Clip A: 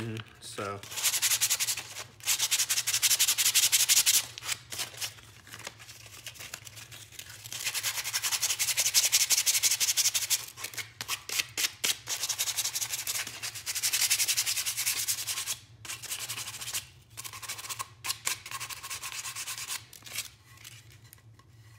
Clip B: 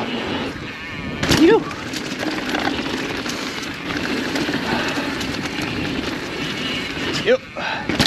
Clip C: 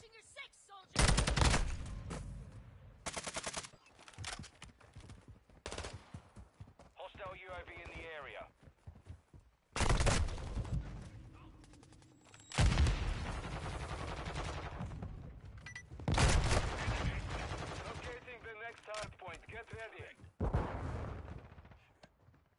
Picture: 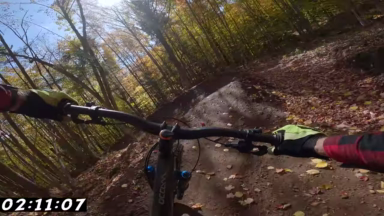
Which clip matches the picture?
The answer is B